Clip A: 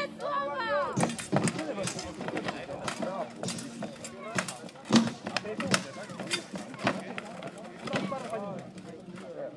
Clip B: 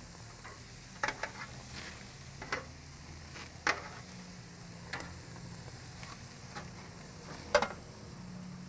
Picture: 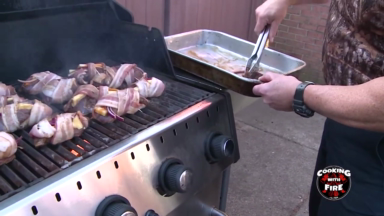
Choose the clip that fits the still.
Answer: B